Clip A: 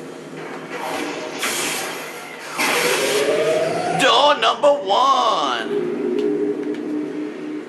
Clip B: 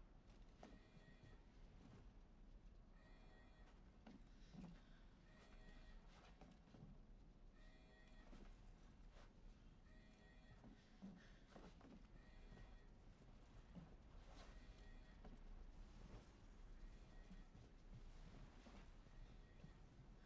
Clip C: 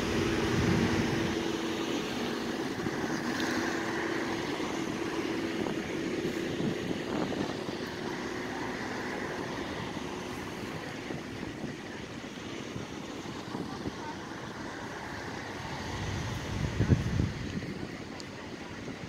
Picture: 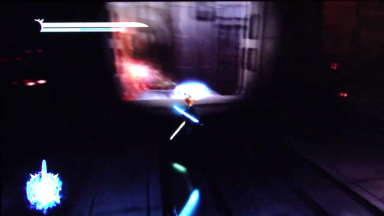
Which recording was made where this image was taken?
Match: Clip A